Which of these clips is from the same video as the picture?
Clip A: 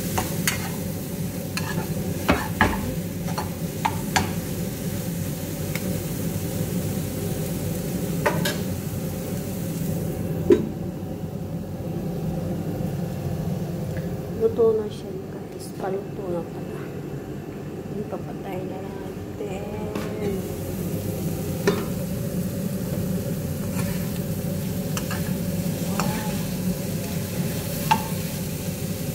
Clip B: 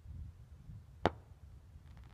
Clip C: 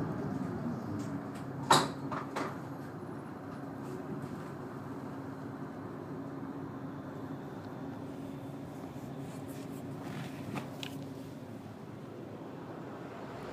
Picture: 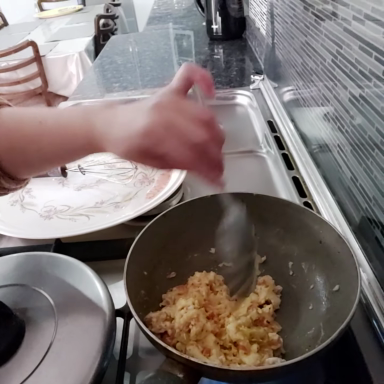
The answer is A